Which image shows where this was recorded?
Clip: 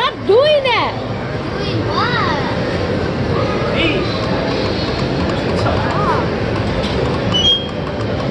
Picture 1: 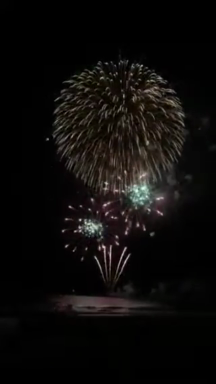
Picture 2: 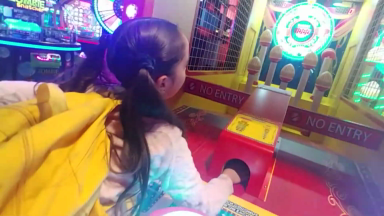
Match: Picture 2